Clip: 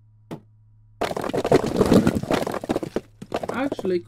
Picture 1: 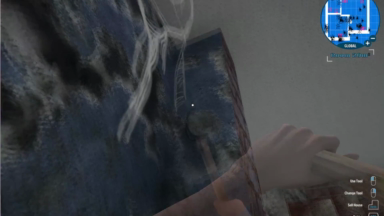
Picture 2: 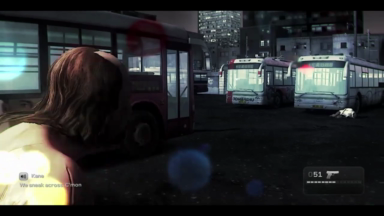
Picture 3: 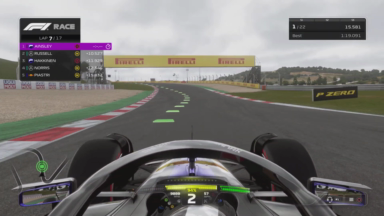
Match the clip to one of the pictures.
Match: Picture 1